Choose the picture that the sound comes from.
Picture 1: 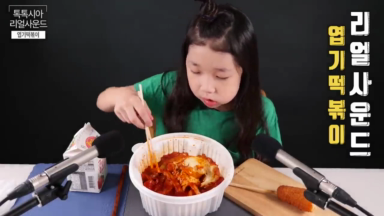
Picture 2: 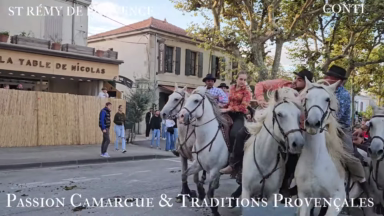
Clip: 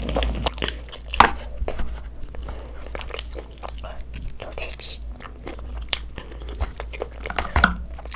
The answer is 1